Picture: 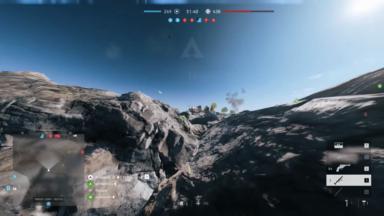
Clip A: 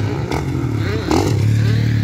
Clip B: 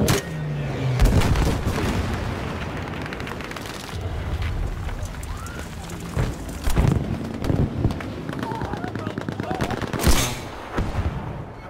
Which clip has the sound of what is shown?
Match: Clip B